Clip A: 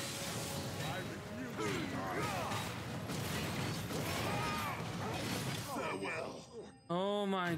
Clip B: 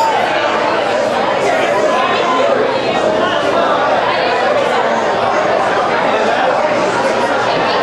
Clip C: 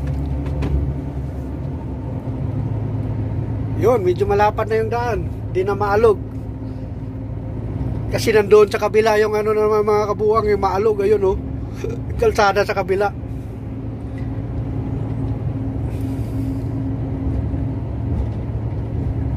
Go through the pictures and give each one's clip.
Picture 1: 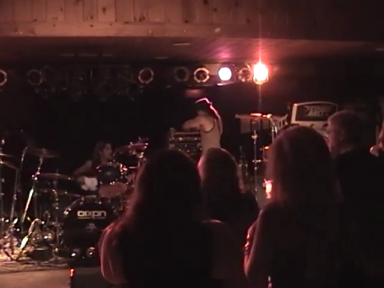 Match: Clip B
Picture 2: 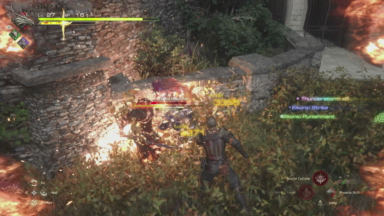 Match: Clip A